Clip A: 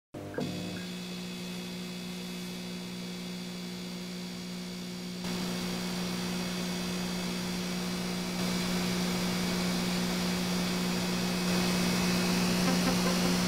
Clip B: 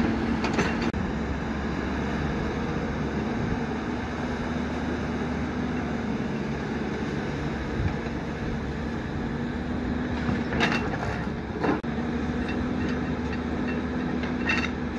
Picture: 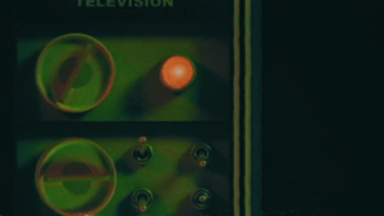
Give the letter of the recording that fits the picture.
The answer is A